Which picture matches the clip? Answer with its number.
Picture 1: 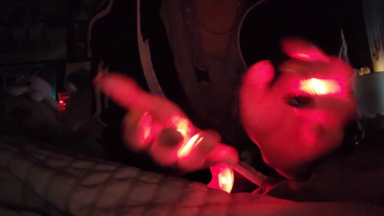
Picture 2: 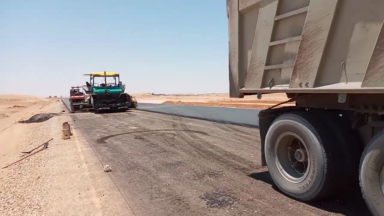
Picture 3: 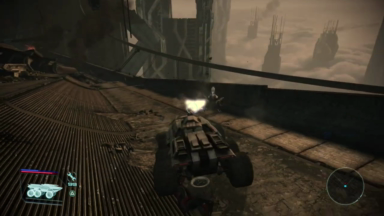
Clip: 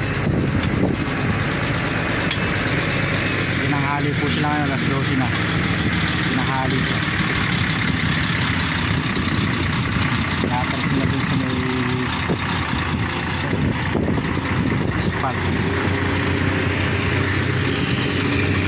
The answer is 2